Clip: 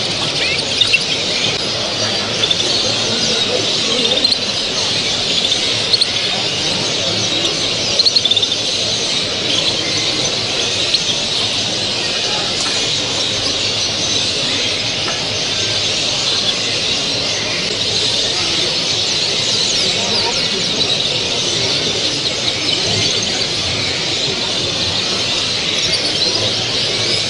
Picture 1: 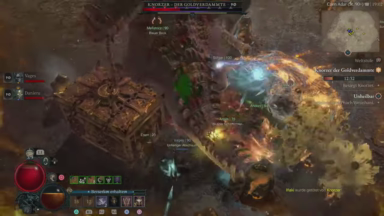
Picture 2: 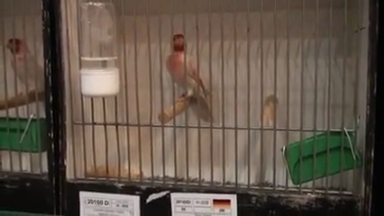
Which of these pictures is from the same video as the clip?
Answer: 2